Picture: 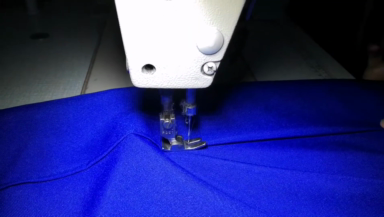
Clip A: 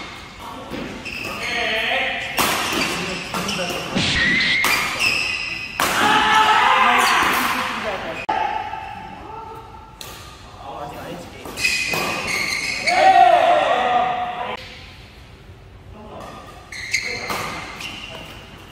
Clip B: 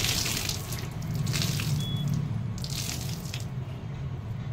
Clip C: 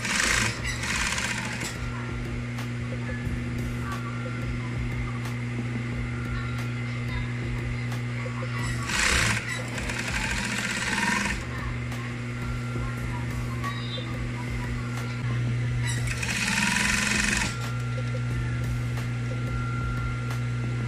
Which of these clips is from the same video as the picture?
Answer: C